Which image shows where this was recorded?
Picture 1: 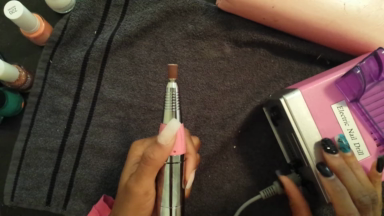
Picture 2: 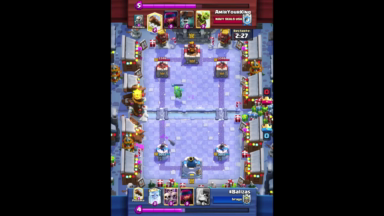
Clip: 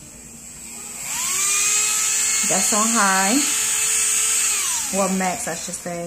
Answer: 1